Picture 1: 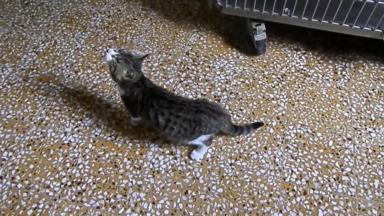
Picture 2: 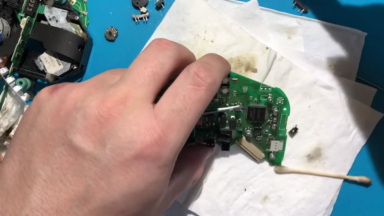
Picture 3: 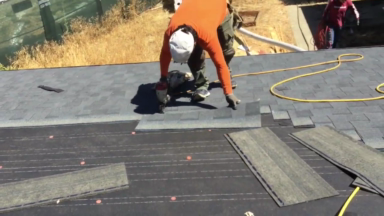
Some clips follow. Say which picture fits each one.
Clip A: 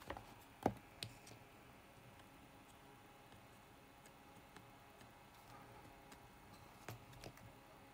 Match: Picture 2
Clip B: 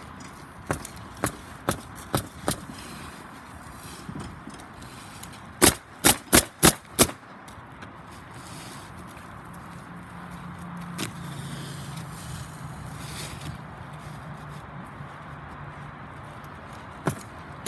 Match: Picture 3